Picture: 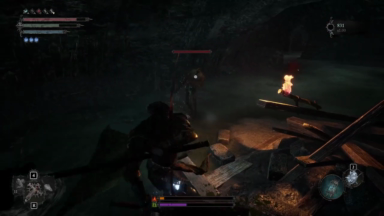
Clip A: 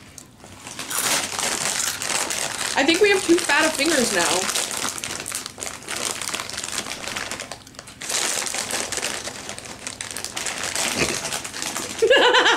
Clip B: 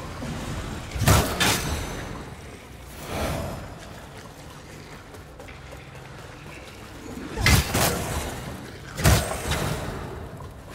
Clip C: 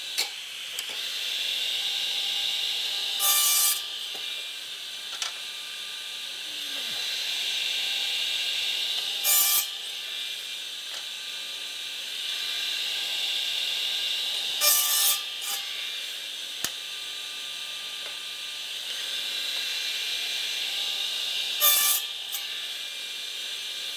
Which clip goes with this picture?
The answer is B